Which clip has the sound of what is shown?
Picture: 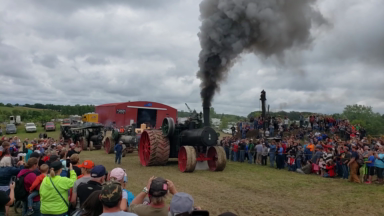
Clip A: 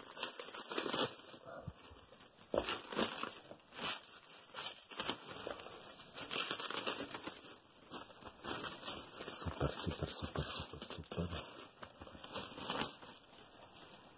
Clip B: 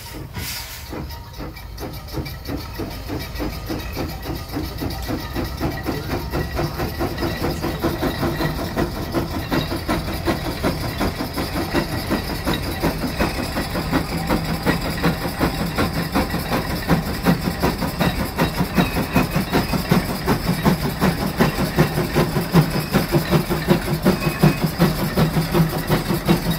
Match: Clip B